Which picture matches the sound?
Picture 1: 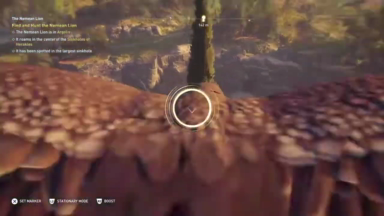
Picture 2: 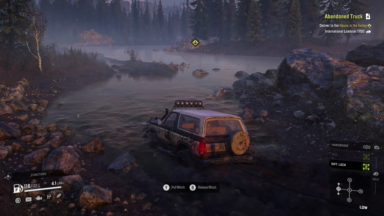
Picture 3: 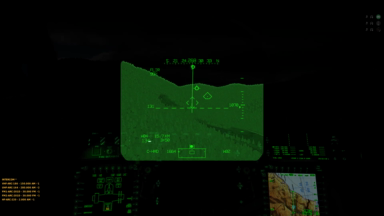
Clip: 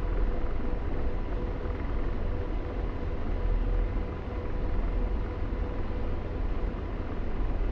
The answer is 3